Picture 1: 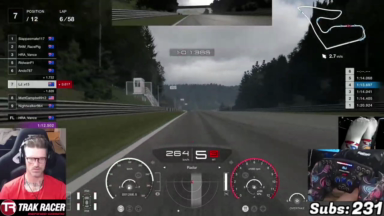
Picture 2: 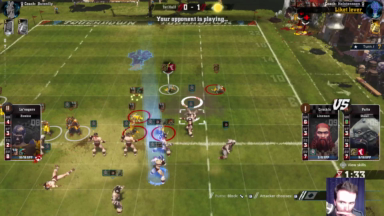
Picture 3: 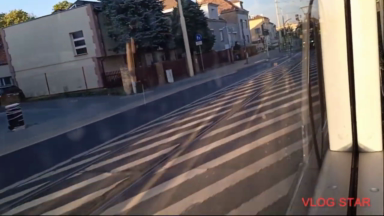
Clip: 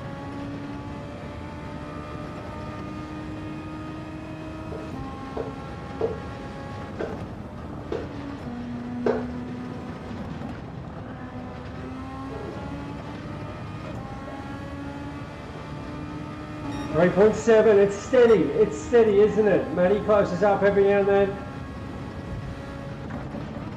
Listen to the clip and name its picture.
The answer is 1